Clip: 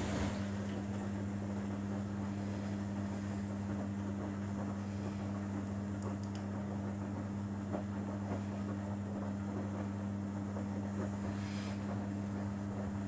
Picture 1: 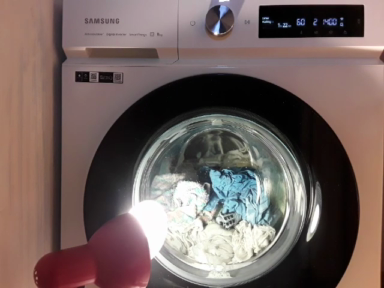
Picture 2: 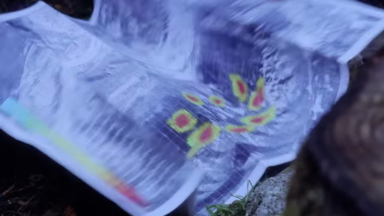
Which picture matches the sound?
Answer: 1